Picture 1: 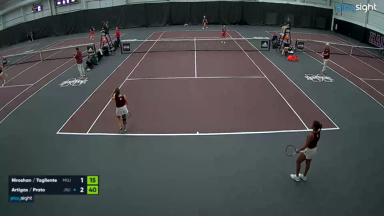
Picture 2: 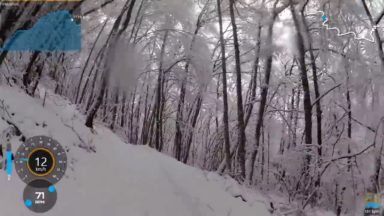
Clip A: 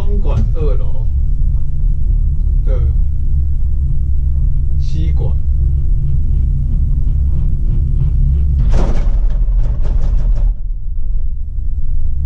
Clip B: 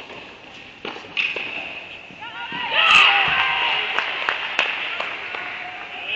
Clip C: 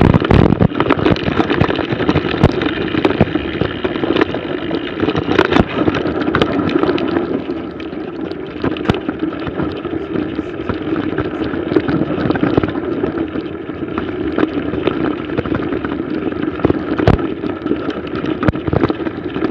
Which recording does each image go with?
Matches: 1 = B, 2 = C